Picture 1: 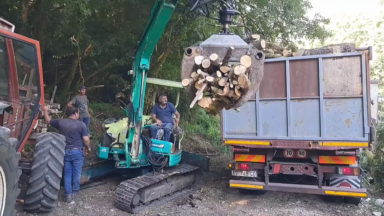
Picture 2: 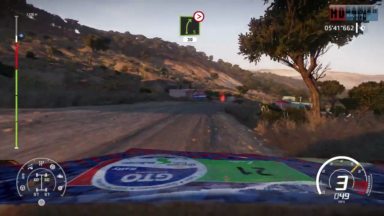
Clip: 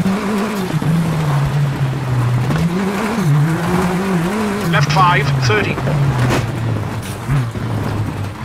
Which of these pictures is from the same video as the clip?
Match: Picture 2